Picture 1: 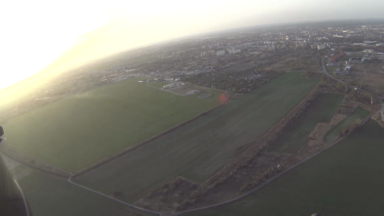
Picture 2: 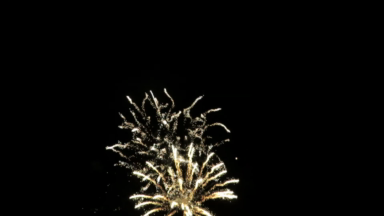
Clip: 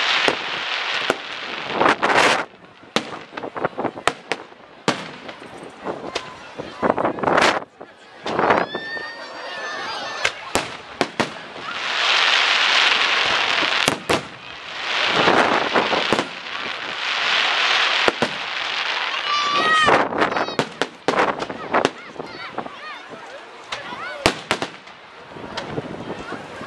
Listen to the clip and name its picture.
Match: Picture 2